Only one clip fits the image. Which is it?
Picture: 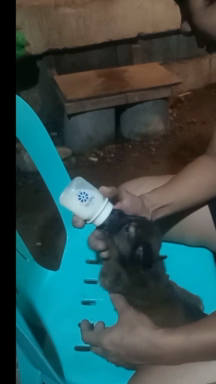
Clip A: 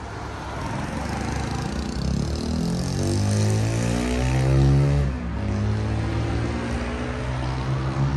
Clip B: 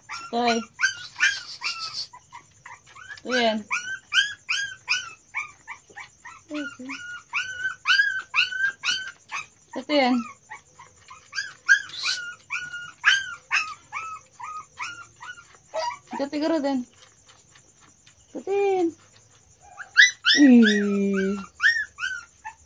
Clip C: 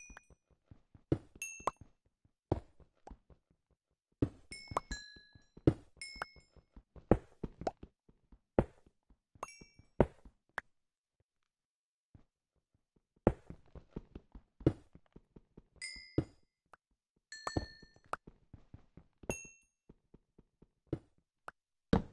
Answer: B